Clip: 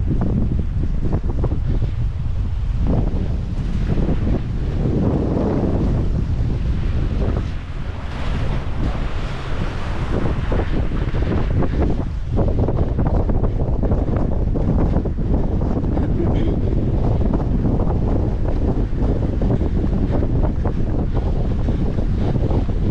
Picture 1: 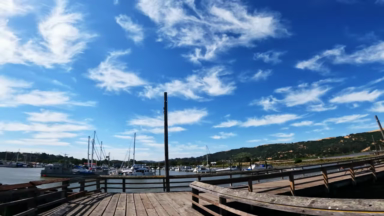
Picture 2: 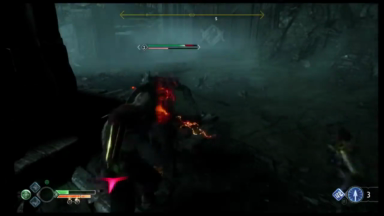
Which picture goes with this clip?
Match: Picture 1